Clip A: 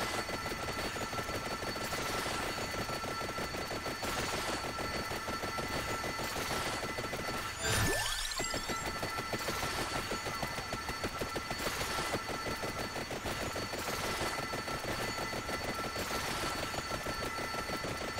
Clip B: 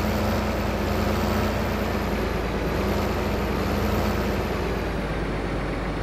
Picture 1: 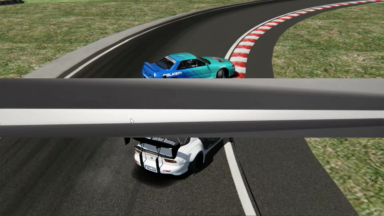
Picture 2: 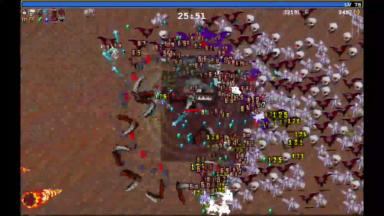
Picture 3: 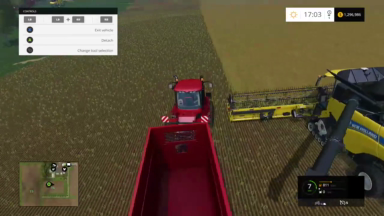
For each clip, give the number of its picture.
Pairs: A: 2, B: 3